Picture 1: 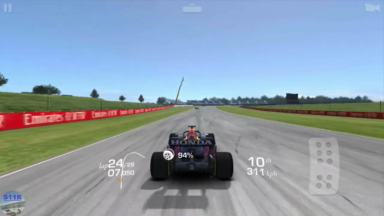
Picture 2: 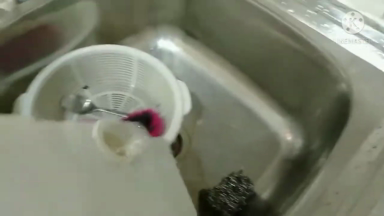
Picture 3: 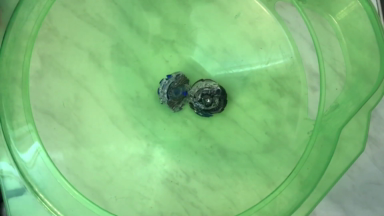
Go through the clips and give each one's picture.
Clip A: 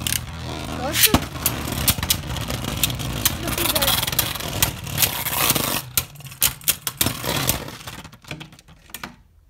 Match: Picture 3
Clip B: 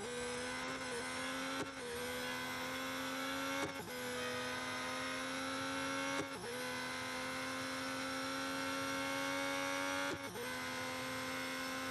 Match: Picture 1